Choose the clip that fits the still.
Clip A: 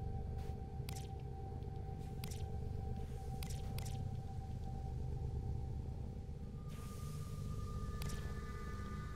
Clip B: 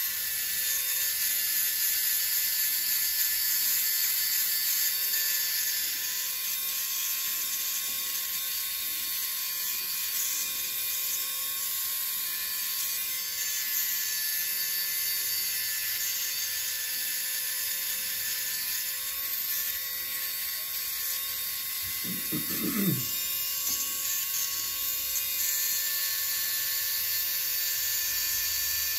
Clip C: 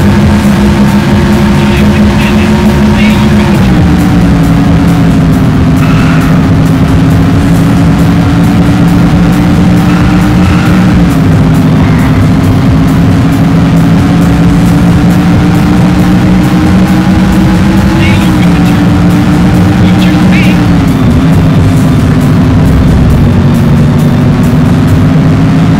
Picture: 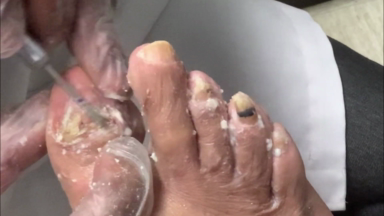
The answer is B